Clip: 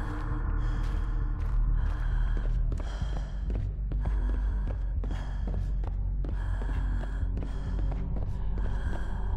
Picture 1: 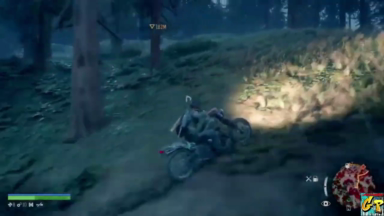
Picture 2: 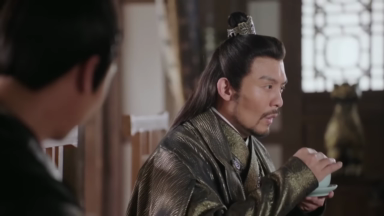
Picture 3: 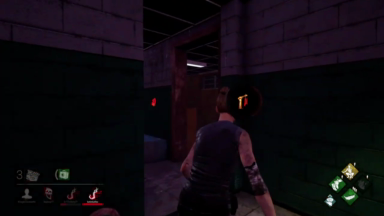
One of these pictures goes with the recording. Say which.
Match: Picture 3